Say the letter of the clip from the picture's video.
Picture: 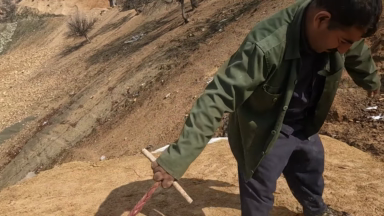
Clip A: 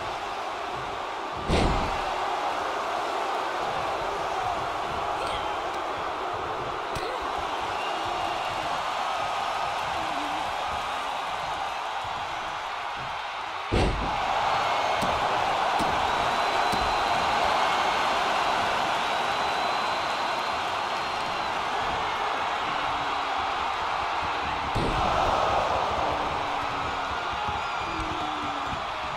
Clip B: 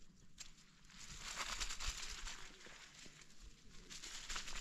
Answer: B